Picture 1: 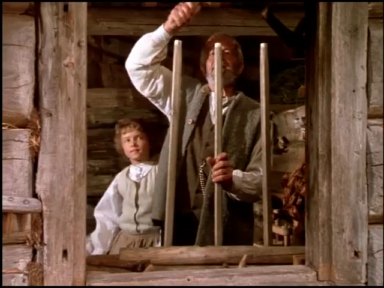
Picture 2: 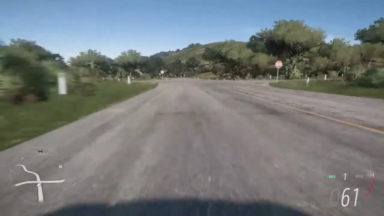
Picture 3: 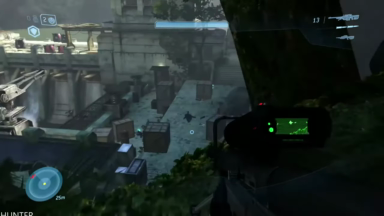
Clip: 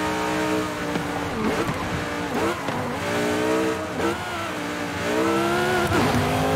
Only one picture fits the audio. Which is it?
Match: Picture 2